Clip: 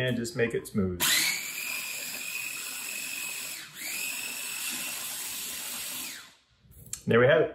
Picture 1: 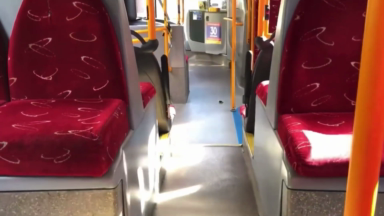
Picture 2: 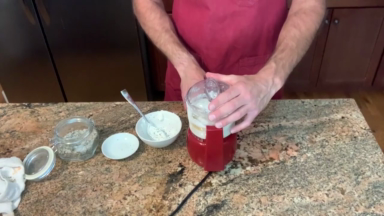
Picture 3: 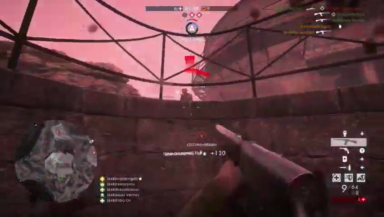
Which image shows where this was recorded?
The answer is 2